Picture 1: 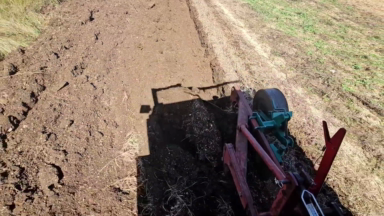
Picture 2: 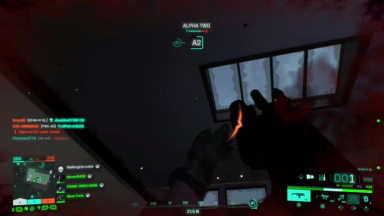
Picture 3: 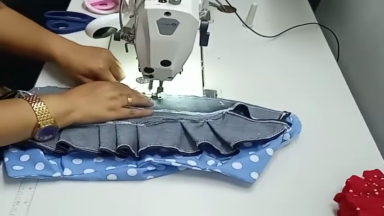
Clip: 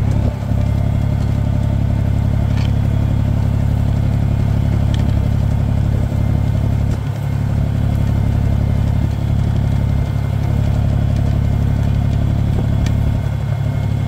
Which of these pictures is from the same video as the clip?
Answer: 1